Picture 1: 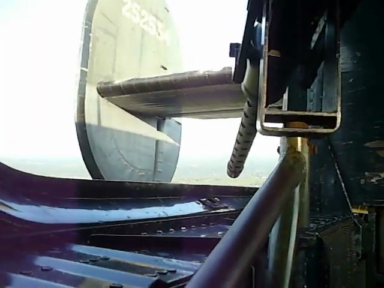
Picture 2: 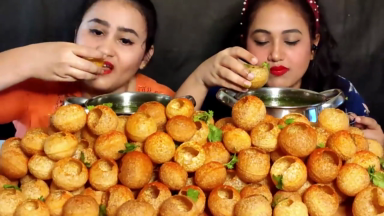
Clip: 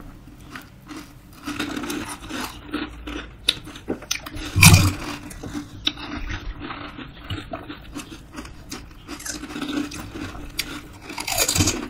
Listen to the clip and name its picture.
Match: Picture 2